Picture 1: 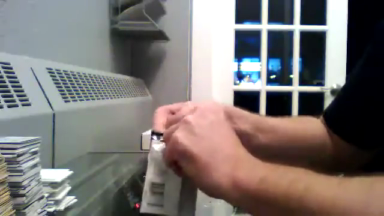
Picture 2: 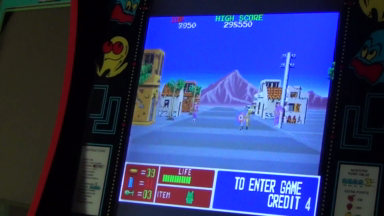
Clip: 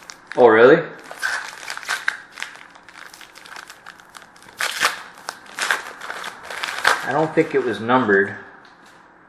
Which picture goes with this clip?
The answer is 1